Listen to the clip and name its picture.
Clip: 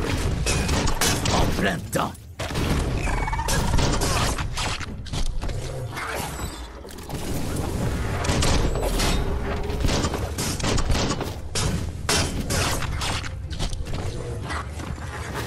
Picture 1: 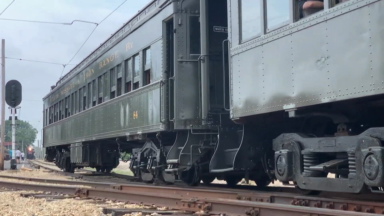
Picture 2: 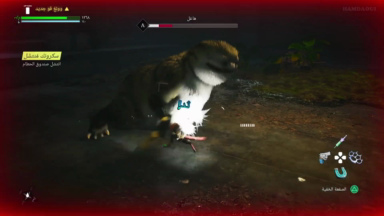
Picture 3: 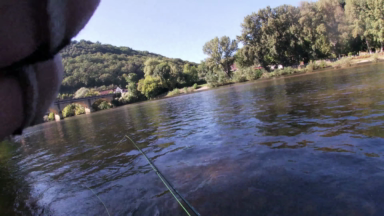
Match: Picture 2